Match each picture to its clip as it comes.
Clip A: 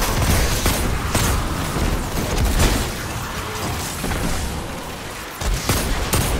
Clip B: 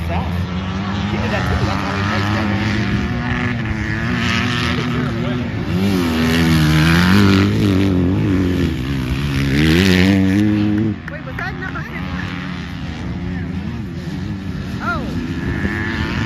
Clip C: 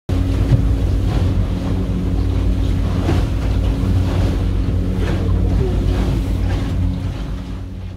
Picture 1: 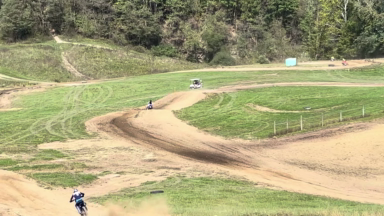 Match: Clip B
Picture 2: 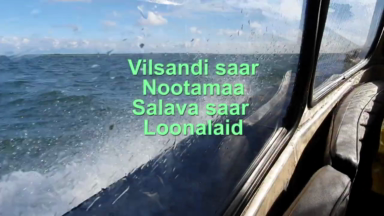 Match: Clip C